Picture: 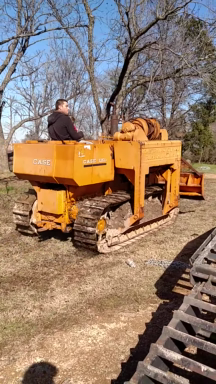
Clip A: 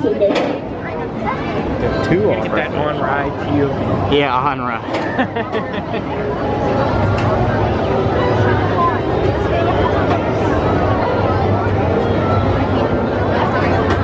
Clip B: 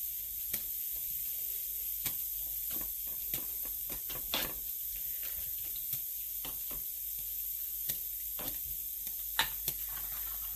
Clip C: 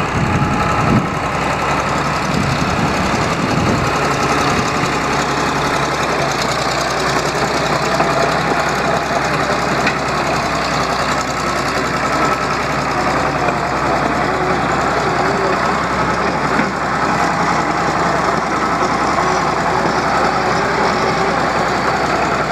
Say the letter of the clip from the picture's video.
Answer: C